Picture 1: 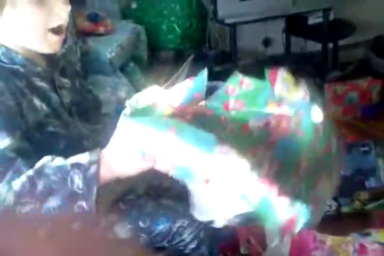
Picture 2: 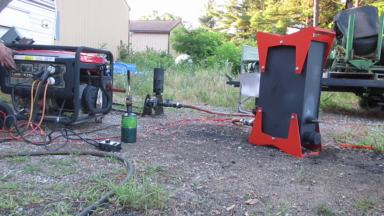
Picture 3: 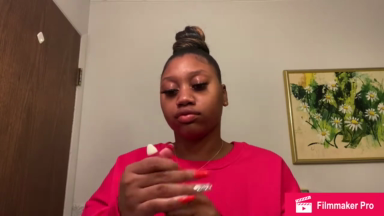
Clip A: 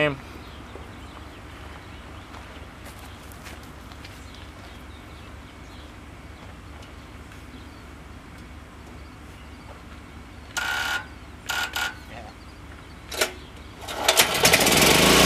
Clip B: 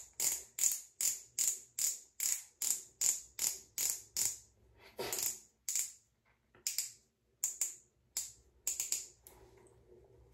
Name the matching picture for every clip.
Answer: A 2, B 3